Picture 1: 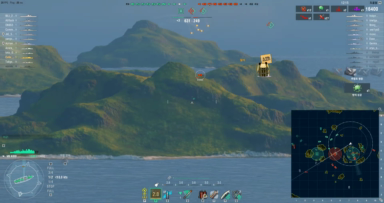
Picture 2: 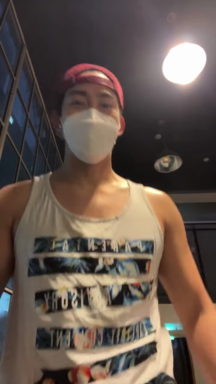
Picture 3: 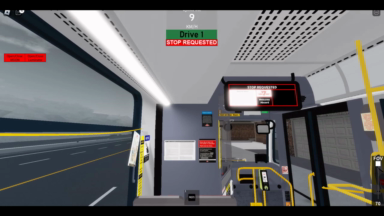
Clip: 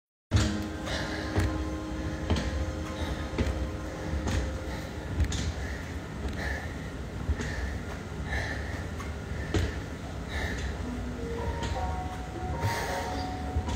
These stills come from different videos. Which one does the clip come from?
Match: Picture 2